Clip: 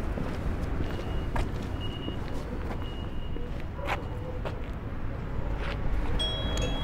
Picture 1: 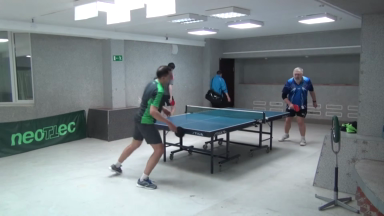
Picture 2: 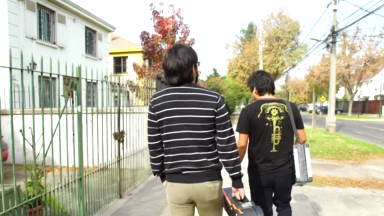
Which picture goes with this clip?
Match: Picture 2